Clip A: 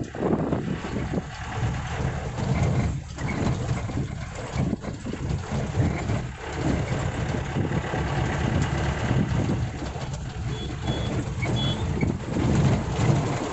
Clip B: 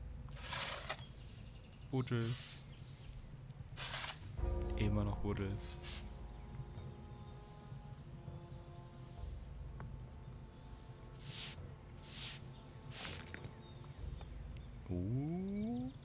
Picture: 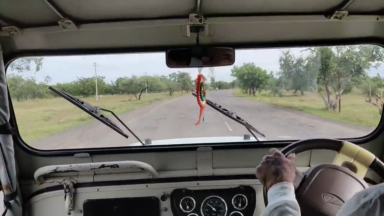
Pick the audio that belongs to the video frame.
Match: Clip A